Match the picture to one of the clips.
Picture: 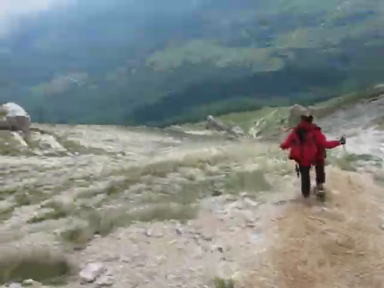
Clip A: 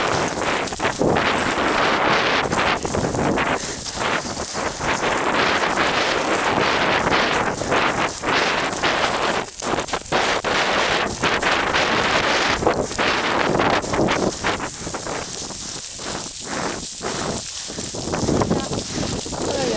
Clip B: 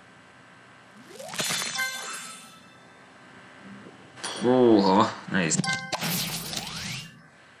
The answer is A